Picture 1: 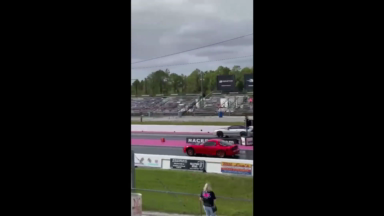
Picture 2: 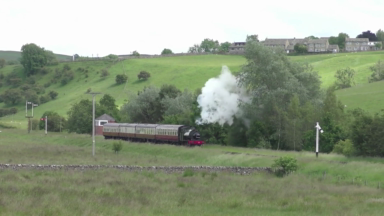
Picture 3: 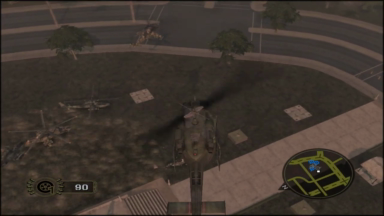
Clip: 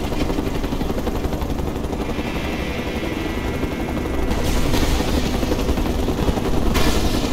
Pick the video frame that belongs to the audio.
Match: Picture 3